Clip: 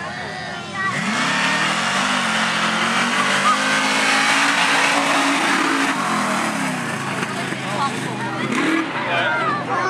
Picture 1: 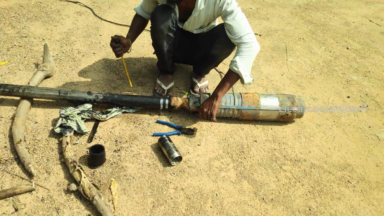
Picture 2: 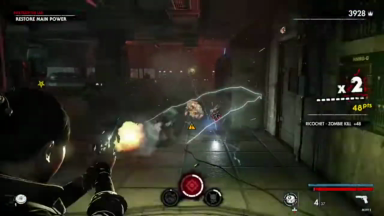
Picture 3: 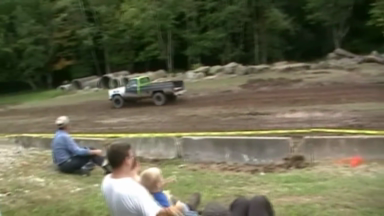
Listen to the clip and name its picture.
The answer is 3